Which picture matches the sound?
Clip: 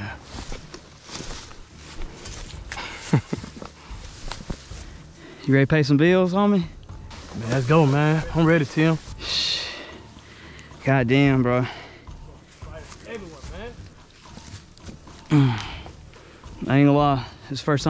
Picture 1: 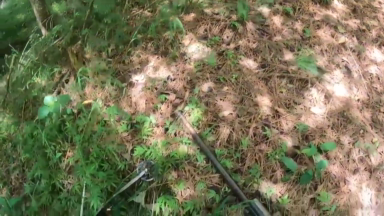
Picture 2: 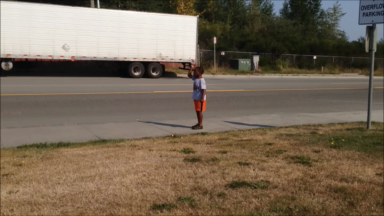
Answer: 1